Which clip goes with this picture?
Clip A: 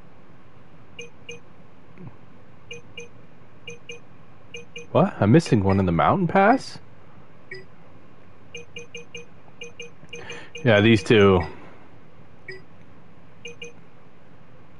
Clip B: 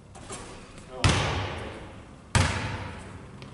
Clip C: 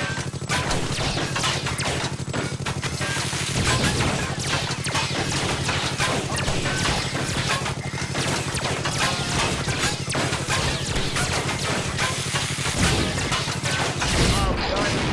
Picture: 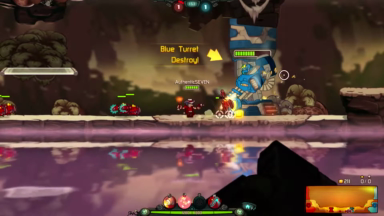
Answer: C